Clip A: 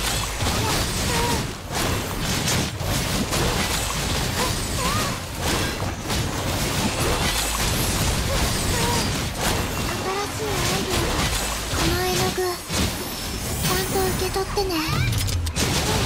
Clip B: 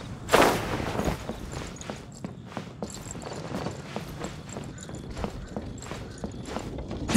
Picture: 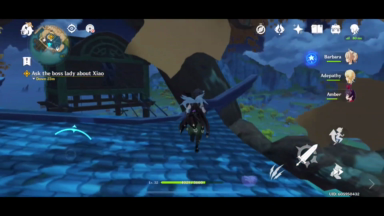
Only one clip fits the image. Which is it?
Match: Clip B